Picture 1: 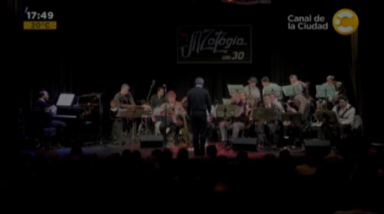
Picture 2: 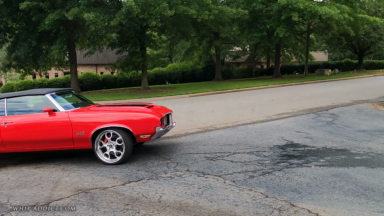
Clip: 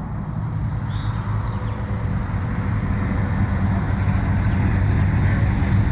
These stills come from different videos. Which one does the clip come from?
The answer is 2